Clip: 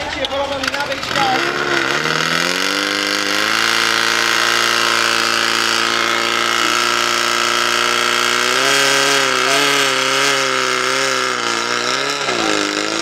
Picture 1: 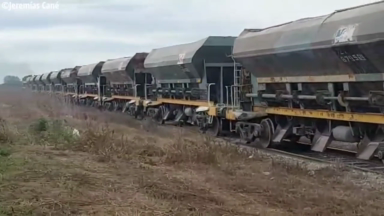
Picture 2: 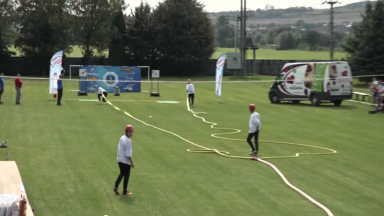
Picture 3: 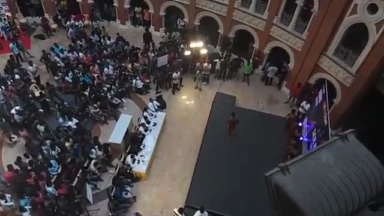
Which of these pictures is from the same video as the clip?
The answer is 2